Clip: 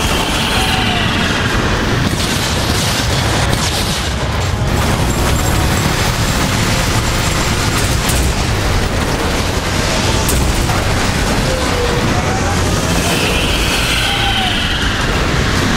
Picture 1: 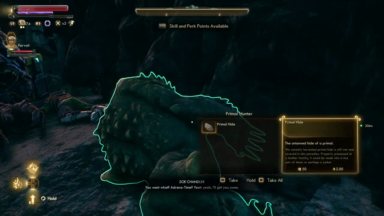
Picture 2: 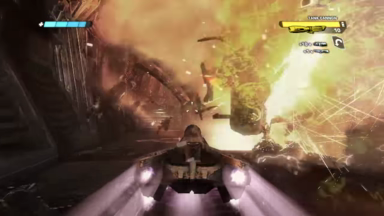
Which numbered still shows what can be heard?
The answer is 2